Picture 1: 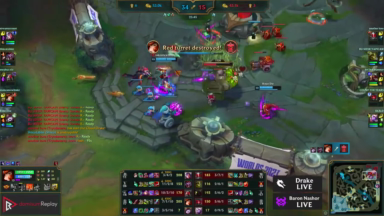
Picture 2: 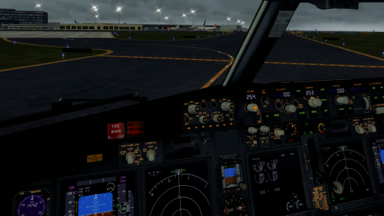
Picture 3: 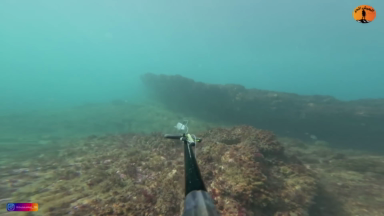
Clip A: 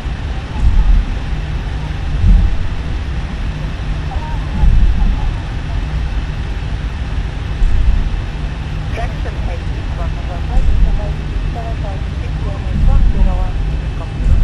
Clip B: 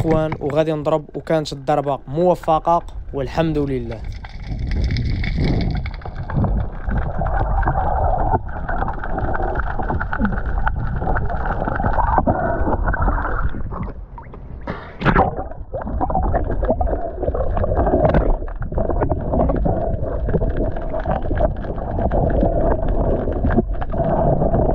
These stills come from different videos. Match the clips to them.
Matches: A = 2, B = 3